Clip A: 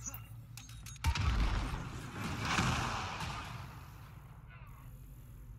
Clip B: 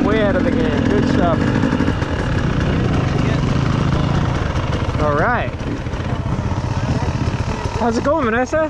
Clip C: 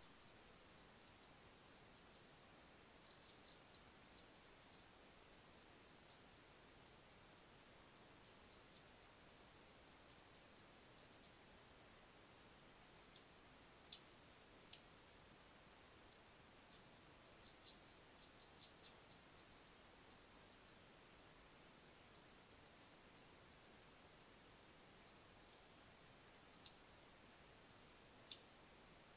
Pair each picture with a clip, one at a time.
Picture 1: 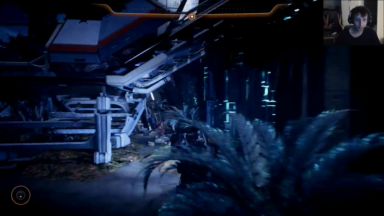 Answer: A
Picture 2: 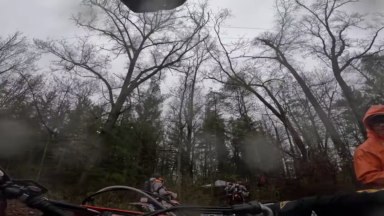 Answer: B